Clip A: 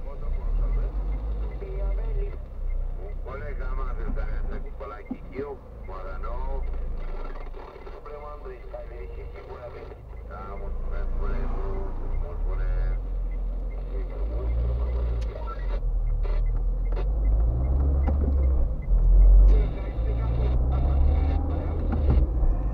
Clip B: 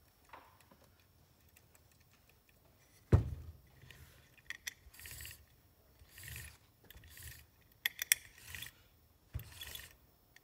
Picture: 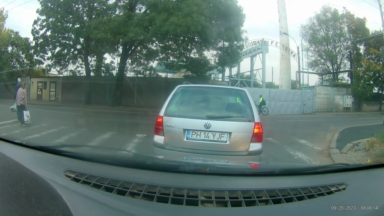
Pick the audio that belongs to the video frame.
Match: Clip A